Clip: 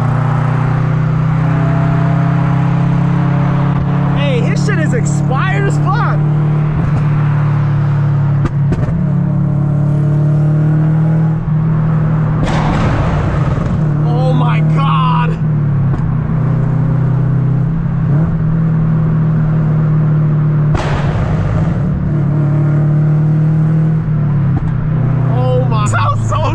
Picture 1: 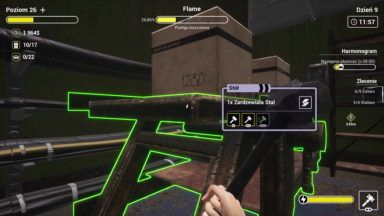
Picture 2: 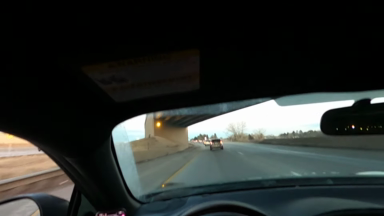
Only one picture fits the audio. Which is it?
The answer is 2